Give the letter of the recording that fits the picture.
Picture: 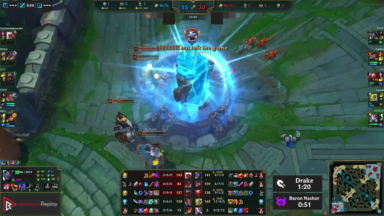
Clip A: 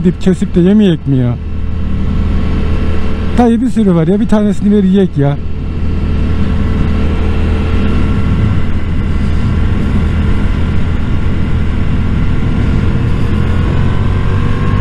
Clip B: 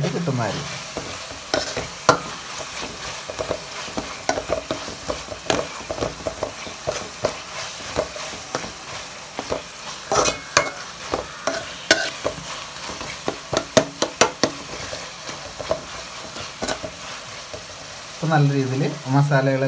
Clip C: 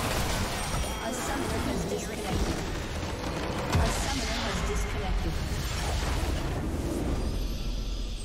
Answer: C